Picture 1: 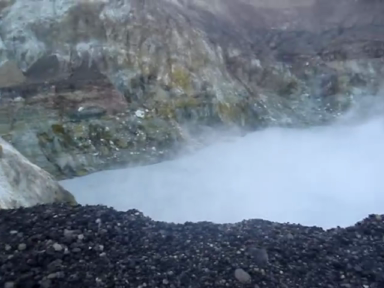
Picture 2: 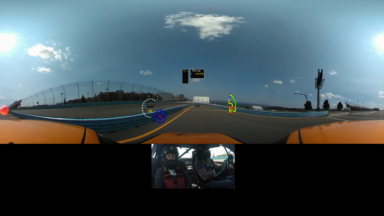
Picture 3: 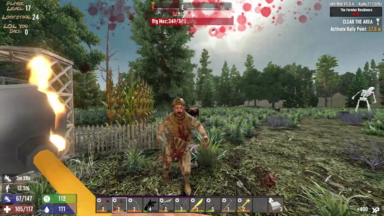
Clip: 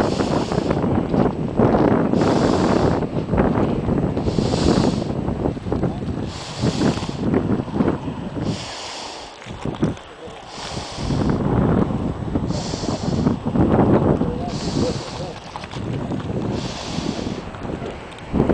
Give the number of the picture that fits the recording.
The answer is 1